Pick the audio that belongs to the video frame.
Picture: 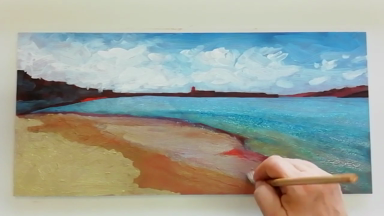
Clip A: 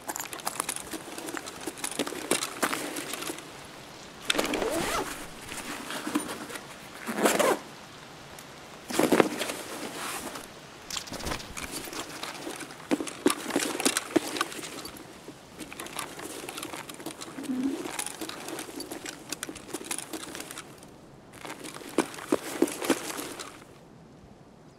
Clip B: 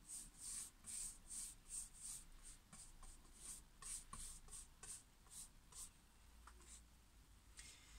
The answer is B